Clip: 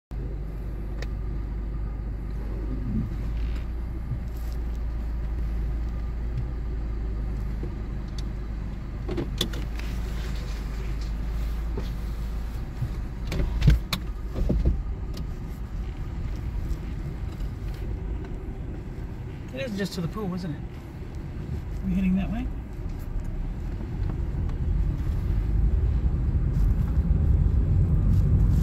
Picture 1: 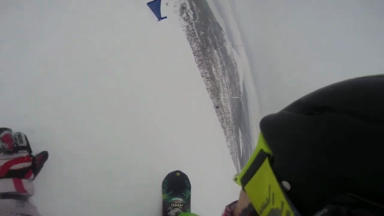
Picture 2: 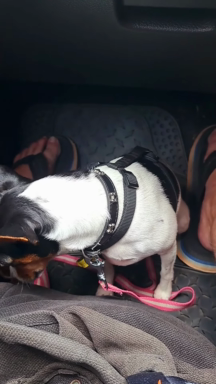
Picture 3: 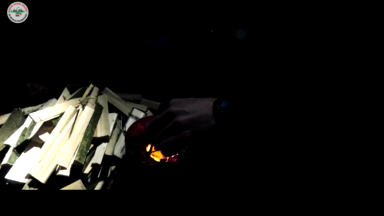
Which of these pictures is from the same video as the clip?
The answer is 2